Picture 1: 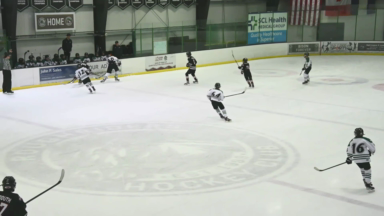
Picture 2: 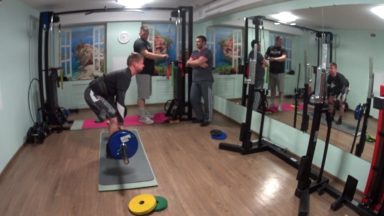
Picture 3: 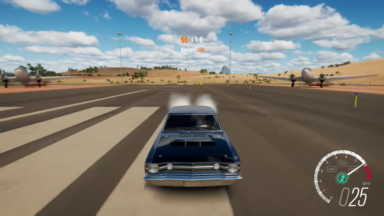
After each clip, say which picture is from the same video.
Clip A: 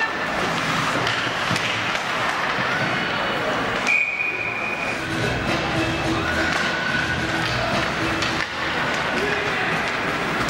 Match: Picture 1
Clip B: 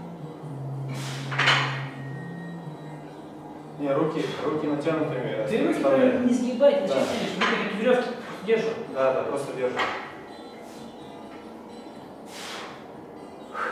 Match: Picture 2